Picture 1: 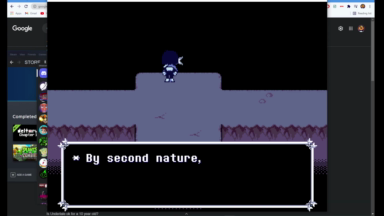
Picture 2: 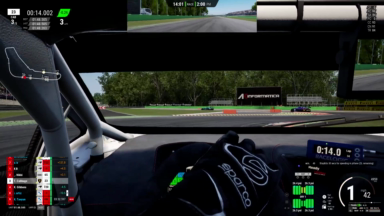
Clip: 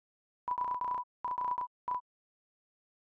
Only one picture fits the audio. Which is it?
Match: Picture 1